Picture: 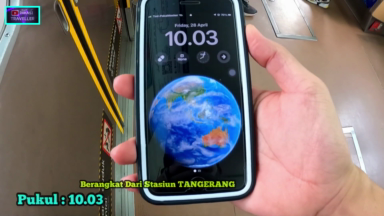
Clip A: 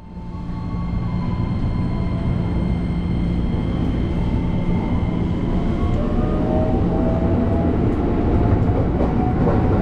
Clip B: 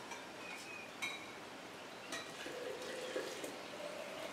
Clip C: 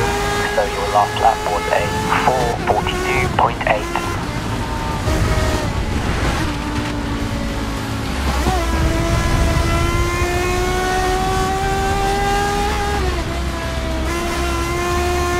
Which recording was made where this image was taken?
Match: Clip A